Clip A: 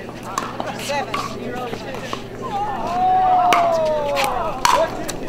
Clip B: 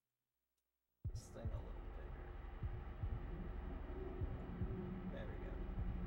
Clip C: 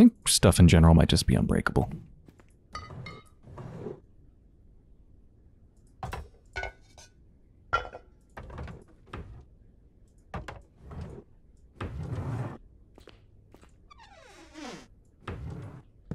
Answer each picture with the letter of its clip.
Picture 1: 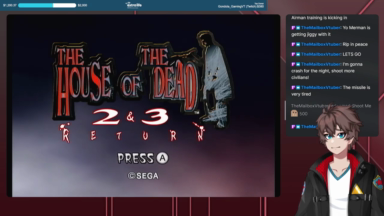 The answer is B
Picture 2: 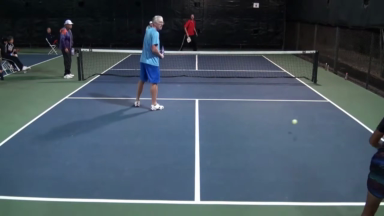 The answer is A